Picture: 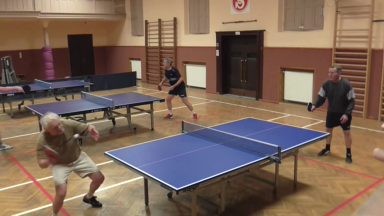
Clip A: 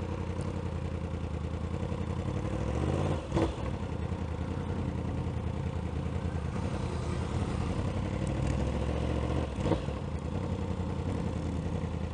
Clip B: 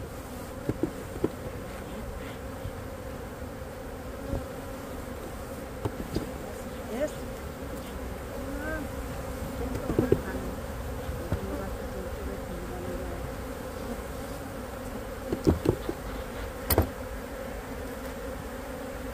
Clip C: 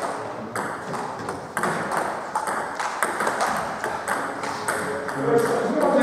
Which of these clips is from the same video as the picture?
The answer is C